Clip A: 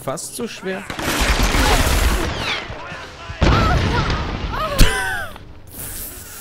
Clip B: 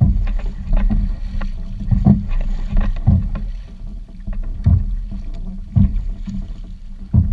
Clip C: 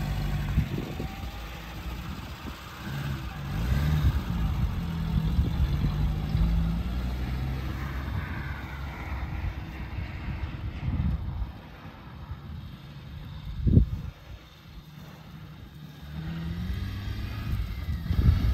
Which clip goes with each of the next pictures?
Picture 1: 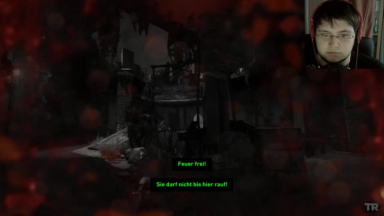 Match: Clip A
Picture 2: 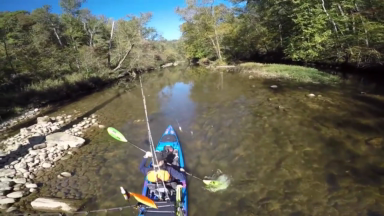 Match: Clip B